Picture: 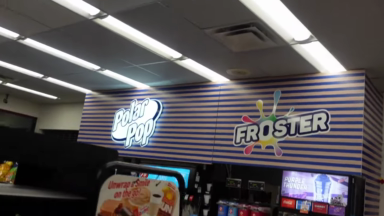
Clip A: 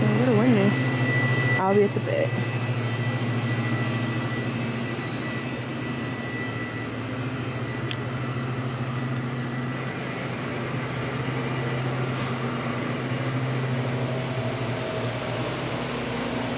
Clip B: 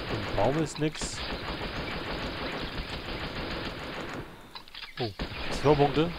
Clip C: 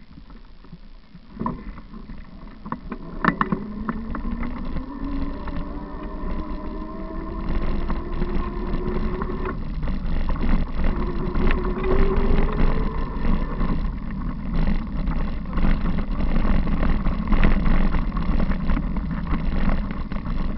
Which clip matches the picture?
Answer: A